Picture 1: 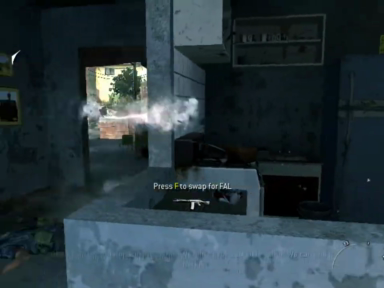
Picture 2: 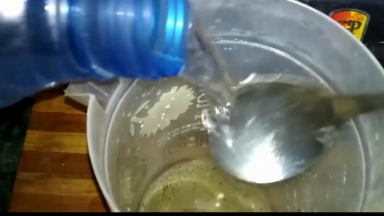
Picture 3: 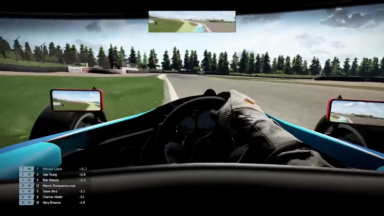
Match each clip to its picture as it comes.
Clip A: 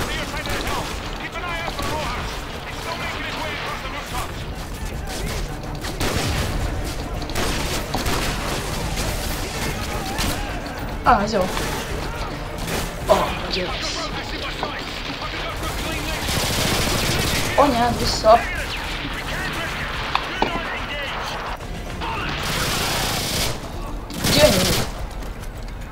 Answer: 1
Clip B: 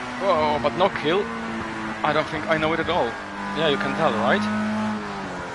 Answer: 3